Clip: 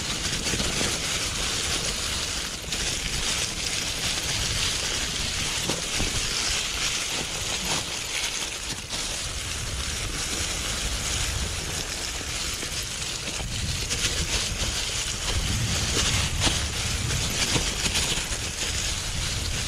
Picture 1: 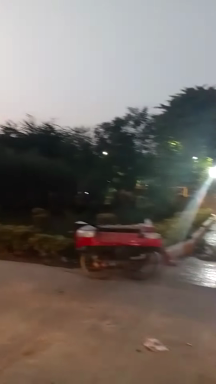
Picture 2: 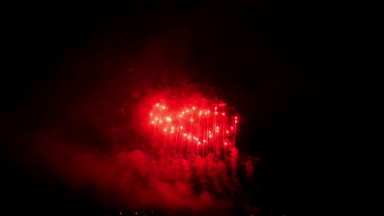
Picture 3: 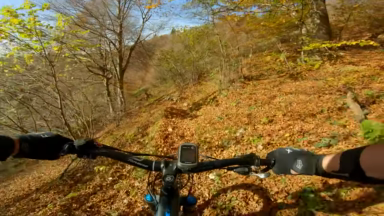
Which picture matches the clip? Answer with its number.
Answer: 3